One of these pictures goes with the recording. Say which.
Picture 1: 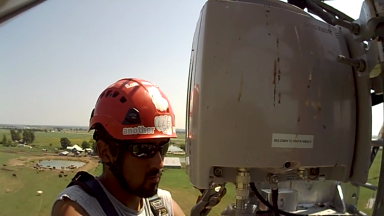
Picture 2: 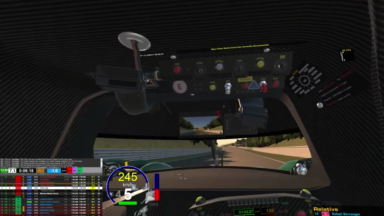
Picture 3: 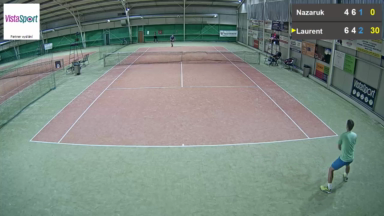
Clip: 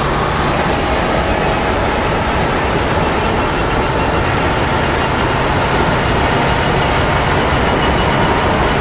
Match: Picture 2